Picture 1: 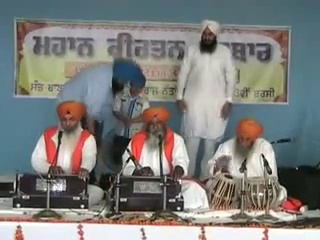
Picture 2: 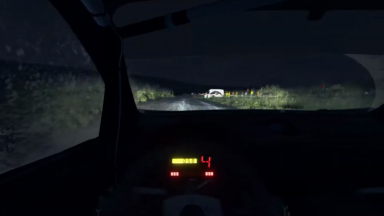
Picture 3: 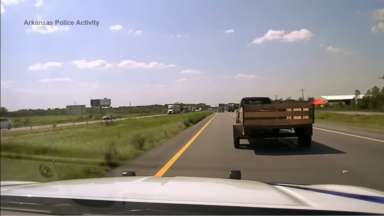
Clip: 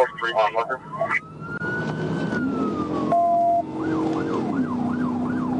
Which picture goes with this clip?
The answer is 3